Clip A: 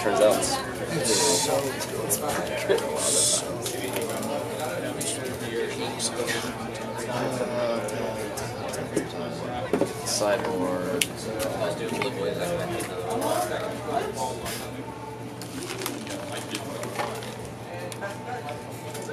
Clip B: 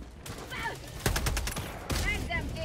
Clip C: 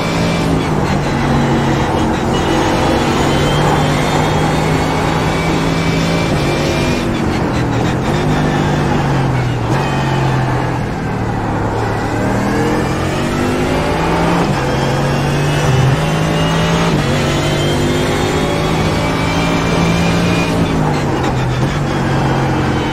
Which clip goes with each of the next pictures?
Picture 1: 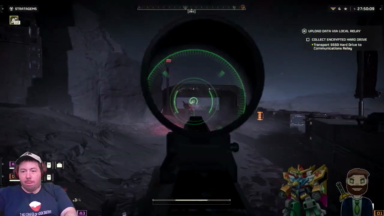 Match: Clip B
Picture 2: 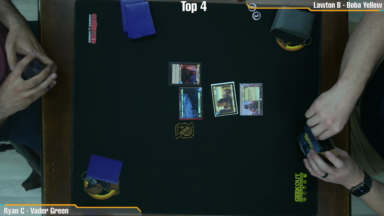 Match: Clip A